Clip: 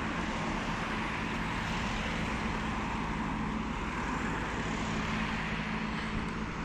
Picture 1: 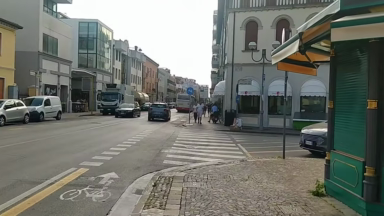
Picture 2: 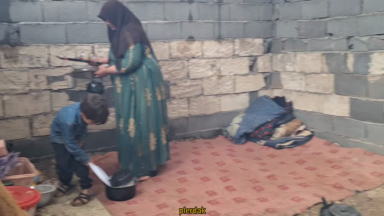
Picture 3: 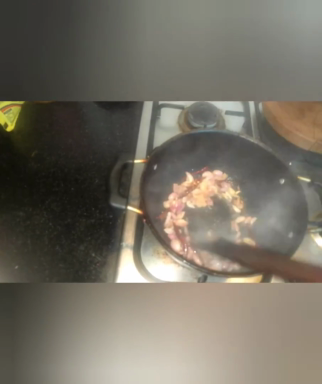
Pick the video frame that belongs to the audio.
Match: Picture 1